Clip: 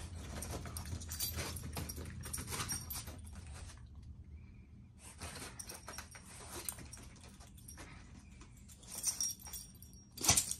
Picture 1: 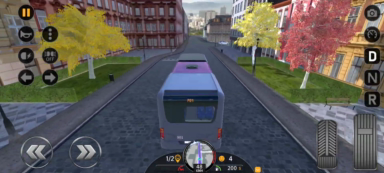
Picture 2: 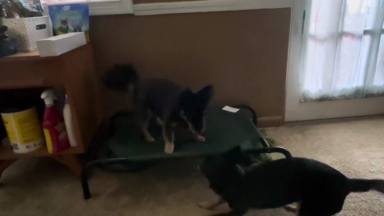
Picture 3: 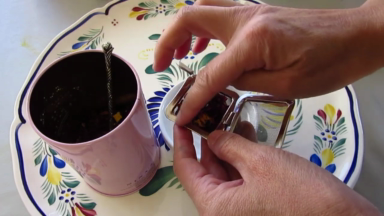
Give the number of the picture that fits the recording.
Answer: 2